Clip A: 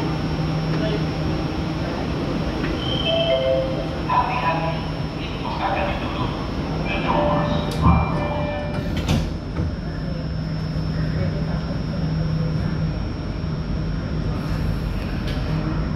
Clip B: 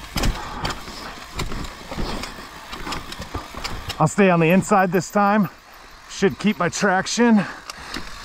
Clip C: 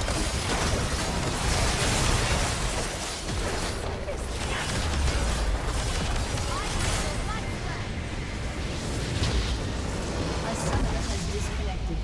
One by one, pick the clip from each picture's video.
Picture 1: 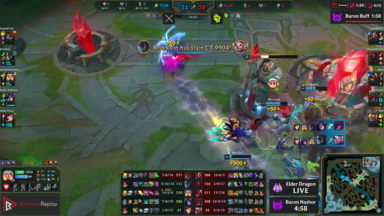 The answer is C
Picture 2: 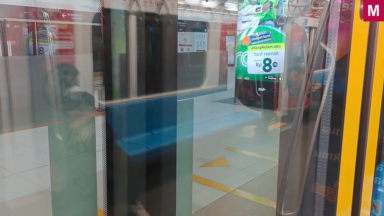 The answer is A